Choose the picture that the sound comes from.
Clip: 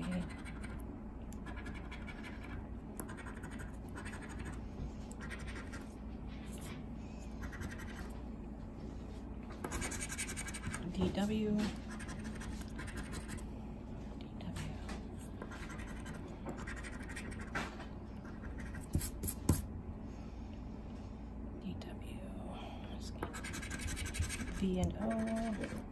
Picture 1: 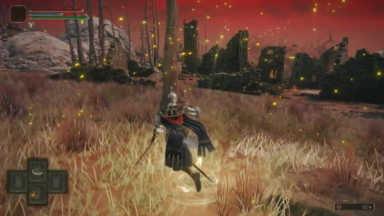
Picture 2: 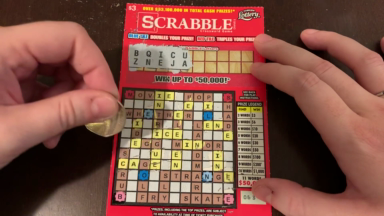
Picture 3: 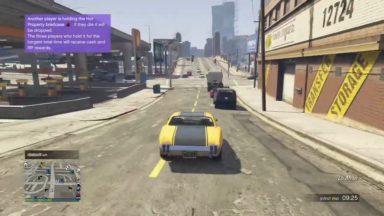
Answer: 2